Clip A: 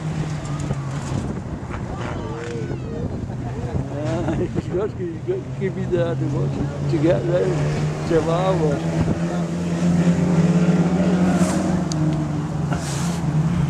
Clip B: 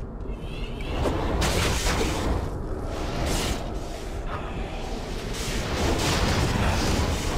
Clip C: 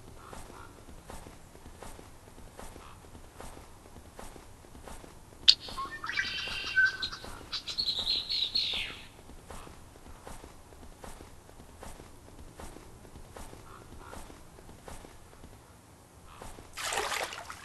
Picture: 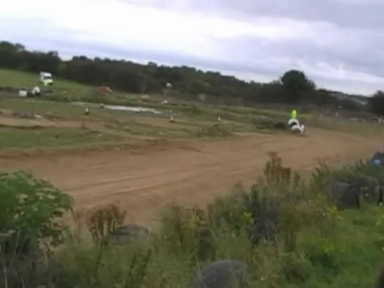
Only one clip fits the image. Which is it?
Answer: A